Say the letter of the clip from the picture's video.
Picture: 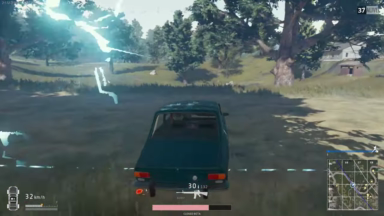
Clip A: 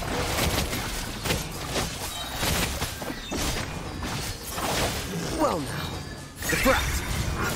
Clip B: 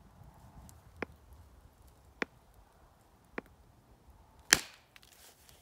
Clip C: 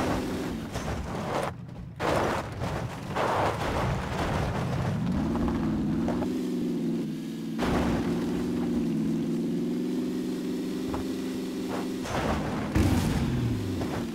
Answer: C